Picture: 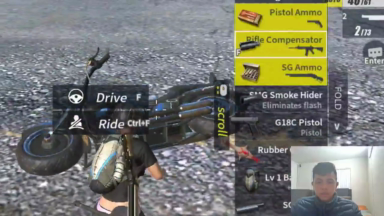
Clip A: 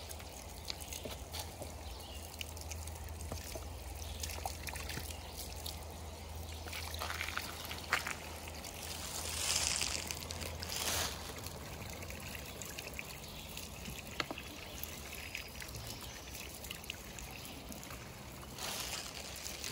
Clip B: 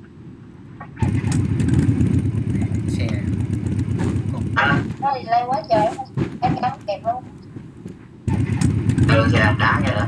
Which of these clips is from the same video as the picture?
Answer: B